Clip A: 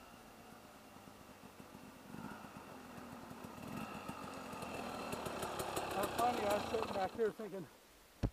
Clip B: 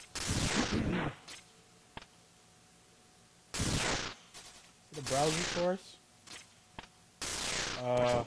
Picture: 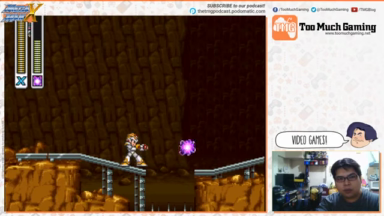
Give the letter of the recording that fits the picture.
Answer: B